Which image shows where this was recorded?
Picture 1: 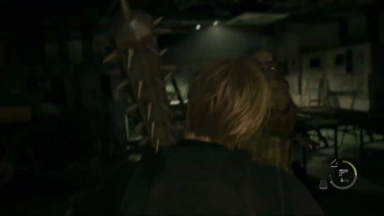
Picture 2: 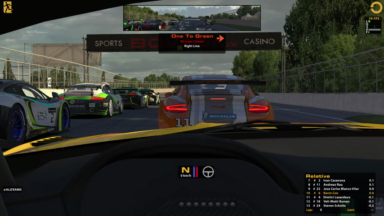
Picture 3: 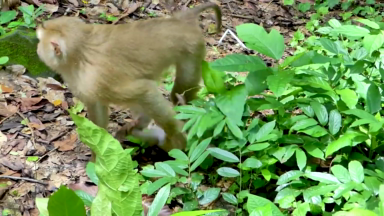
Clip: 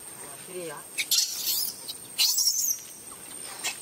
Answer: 3